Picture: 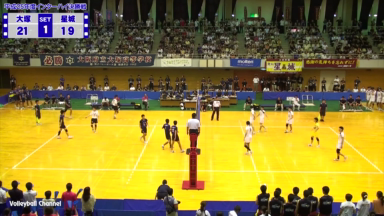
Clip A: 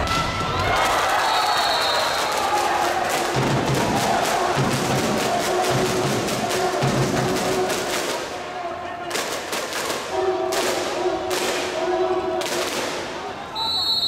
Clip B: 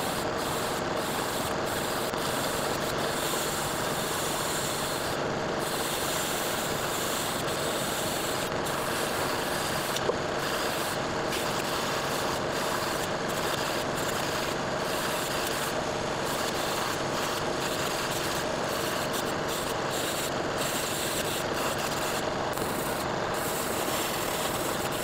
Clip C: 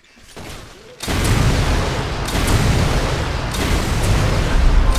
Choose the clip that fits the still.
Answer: A